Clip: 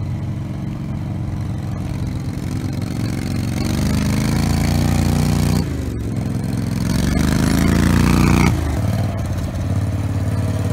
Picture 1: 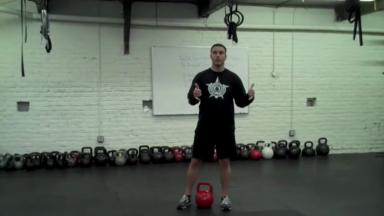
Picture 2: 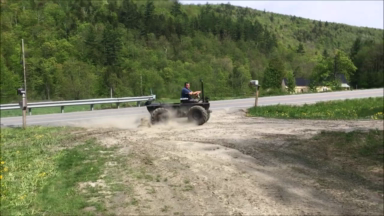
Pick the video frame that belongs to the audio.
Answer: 2